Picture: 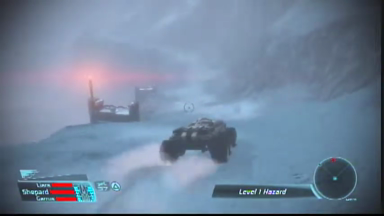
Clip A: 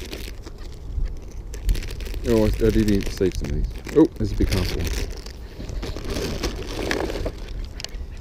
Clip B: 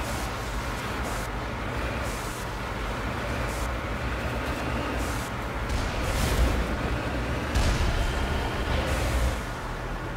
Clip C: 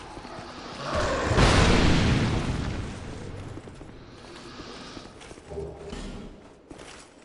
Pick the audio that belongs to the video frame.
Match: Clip B